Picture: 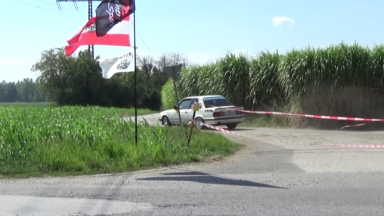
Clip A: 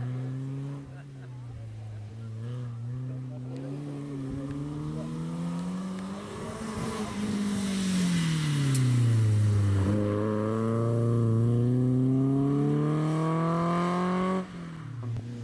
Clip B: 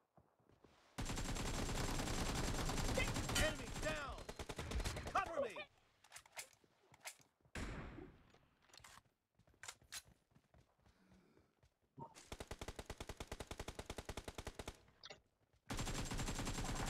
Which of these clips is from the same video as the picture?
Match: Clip A